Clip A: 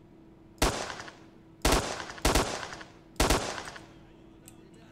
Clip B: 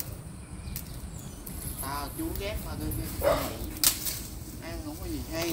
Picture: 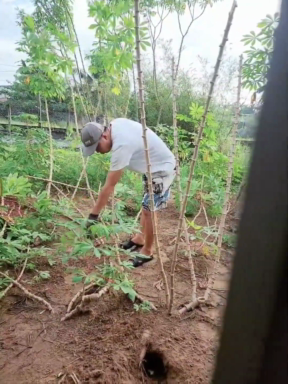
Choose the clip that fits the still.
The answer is B